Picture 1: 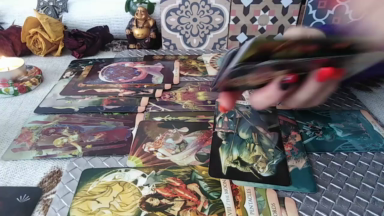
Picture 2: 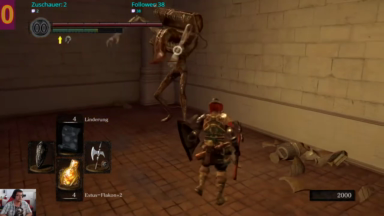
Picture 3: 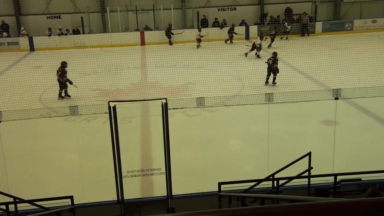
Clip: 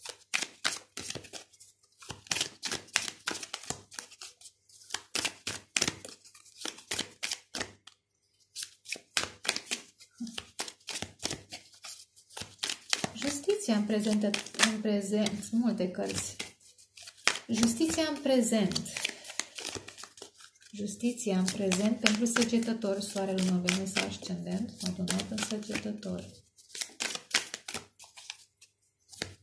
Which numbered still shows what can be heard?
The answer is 1